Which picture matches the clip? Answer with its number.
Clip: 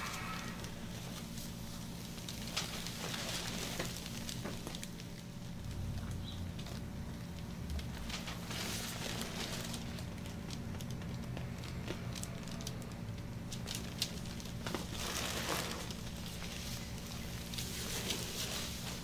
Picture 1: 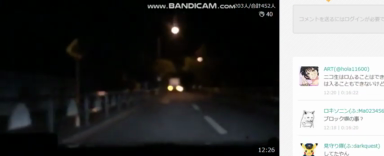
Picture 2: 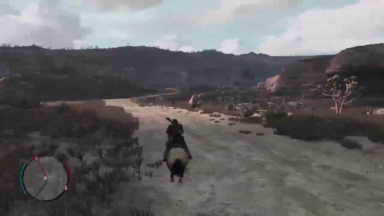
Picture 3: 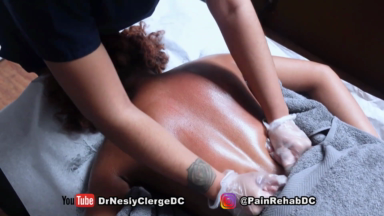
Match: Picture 3